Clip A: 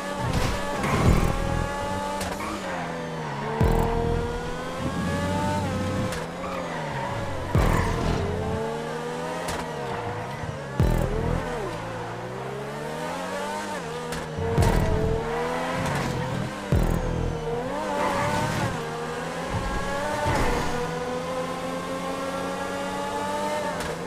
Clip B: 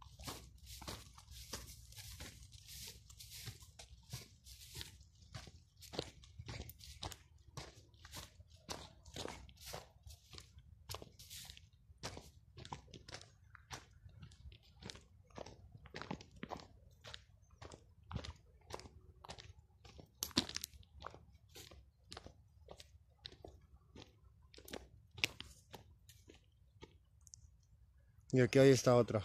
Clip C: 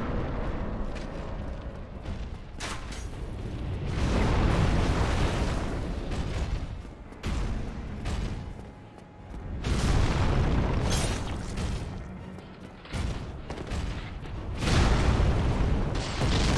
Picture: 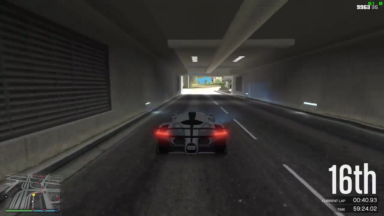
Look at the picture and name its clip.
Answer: A